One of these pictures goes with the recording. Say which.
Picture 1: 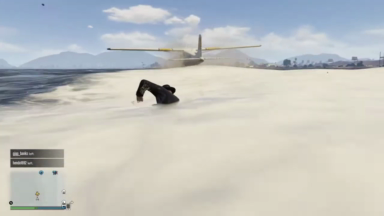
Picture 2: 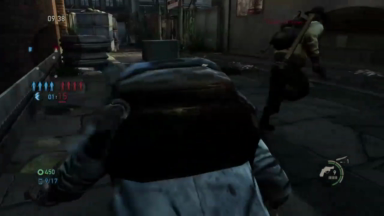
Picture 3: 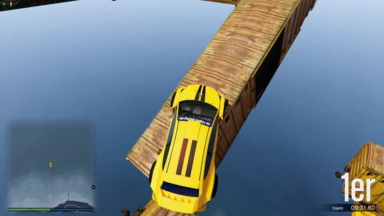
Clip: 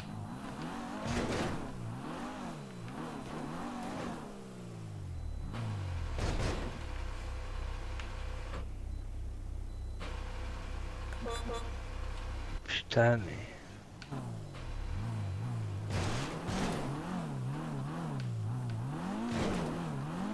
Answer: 3